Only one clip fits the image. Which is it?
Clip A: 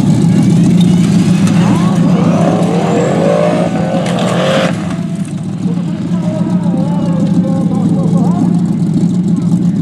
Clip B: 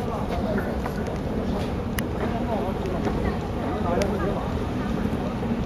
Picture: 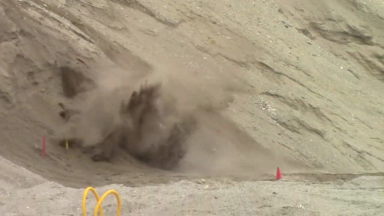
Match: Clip A